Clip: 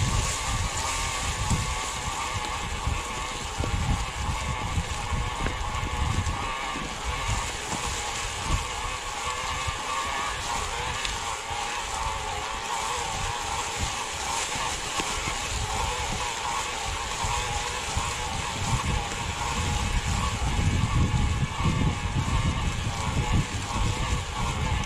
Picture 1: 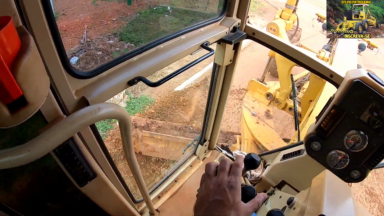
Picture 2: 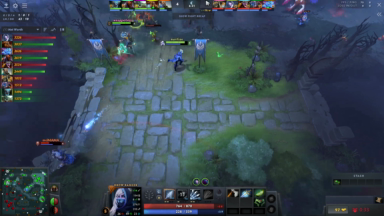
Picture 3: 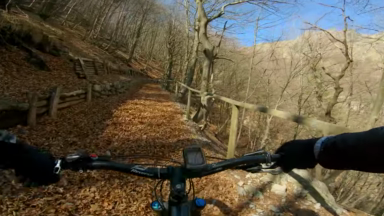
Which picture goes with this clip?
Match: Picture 3